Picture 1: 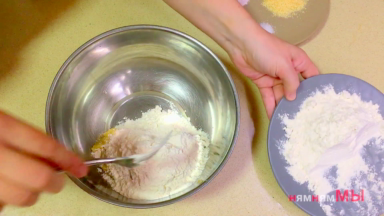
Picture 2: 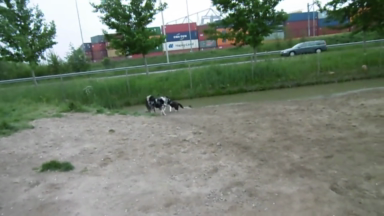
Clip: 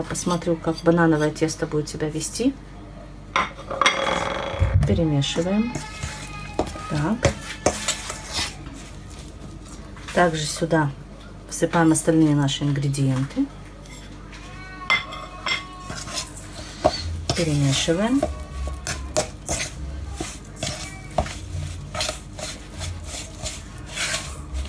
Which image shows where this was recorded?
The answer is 1